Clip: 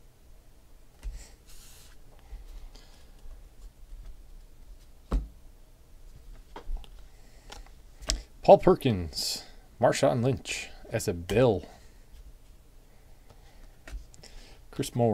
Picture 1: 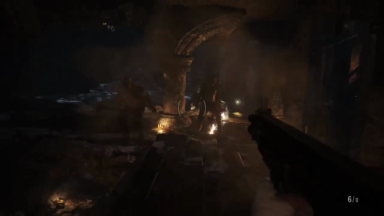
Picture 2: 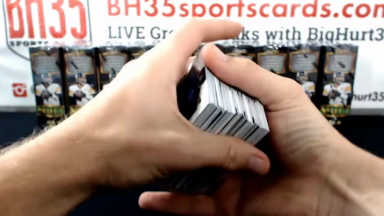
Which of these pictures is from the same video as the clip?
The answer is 2